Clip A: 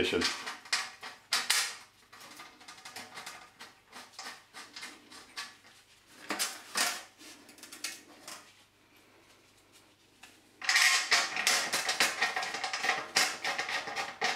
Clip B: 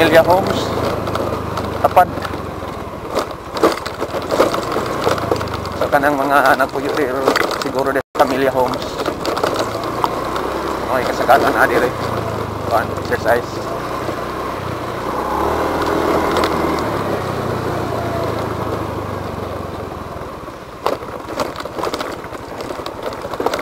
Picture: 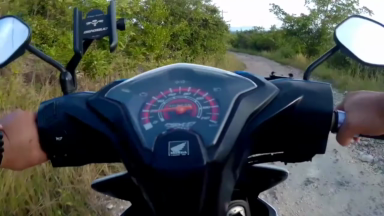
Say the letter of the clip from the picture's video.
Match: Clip B